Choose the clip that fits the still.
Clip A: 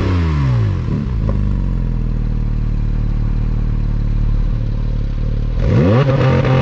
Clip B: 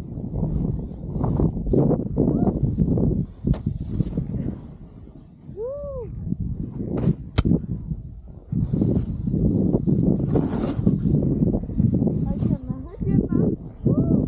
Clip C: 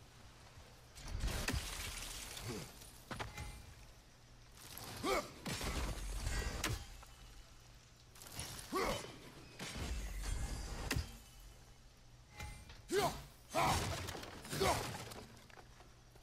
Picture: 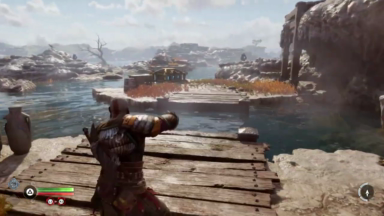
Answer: C